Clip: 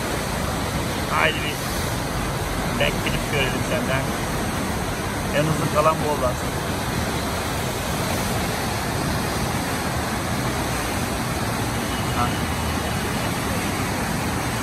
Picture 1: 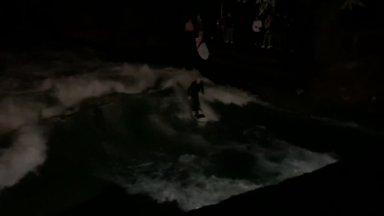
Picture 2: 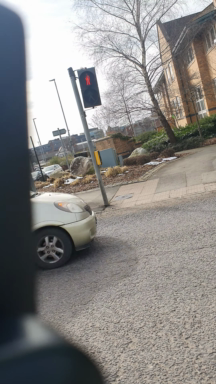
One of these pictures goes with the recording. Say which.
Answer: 1